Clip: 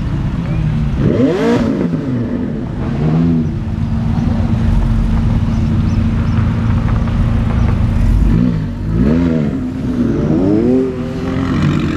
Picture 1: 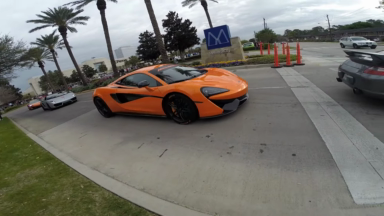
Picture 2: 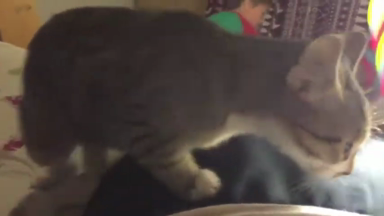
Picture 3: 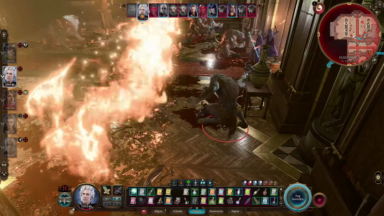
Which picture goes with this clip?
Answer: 1